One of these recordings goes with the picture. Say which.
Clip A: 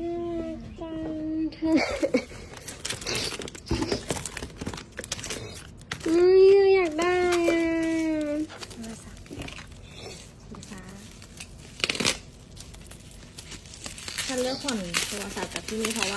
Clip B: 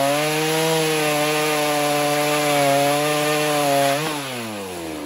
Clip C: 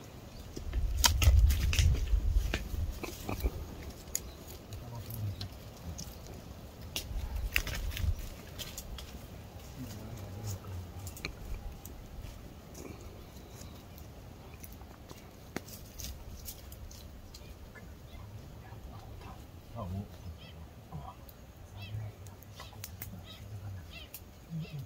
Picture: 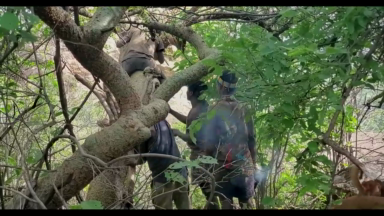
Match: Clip C